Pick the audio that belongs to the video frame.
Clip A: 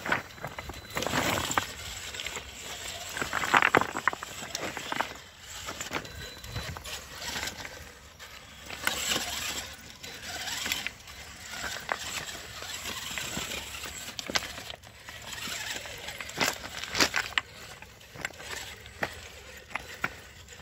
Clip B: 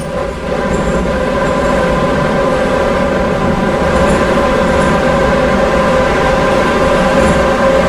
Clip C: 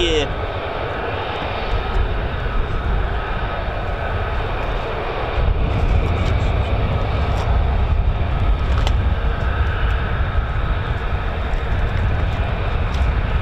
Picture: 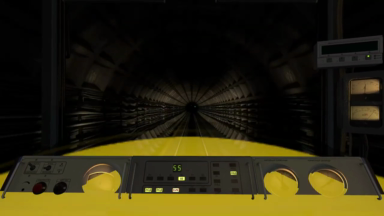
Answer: B